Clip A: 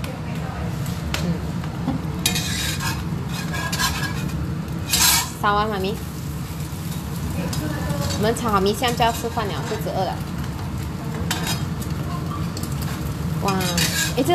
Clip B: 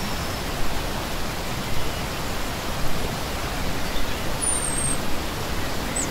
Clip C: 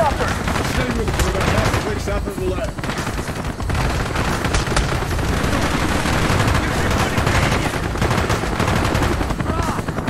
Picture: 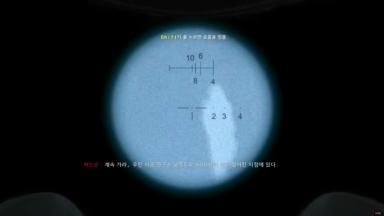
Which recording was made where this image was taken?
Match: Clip C